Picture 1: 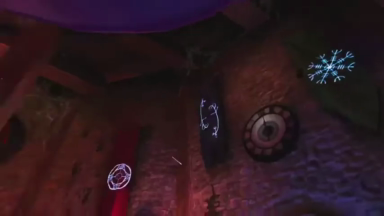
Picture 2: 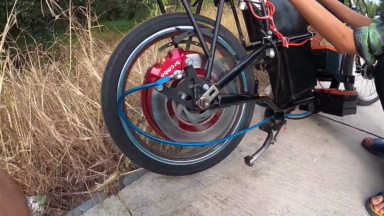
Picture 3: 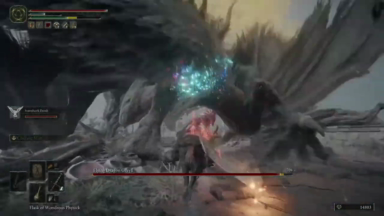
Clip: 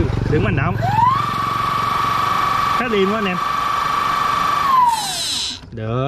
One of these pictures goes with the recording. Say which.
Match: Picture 2